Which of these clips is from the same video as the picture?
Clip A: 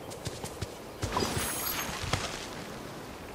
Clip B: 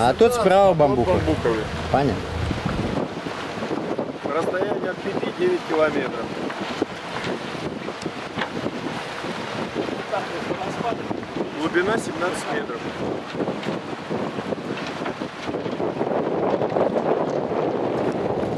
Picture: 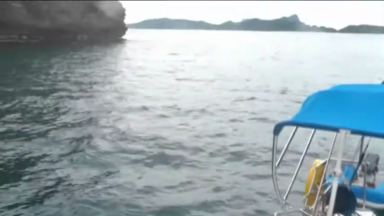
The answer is B